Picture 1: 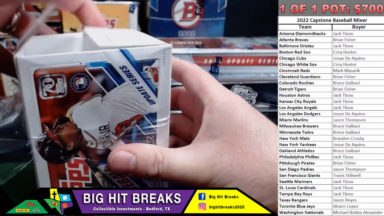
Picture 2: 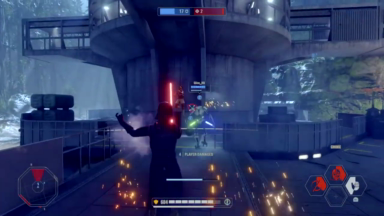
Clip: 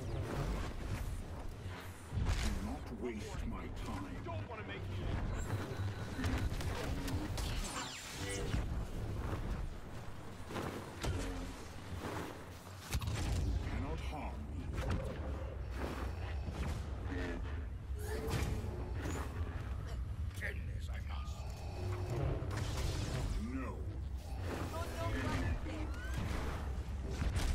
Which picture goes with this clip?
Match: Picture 2